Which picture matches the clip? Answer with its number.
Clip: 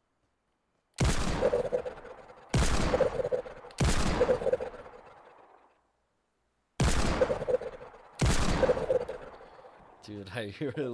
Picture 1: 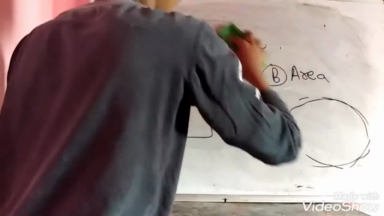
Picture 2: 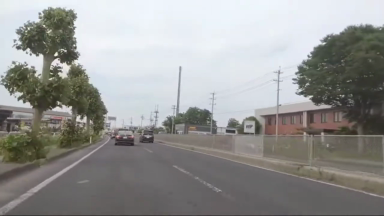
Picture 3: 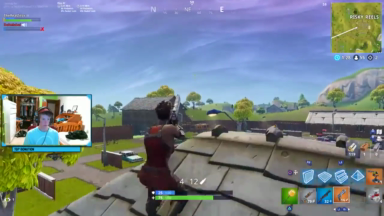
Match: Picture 3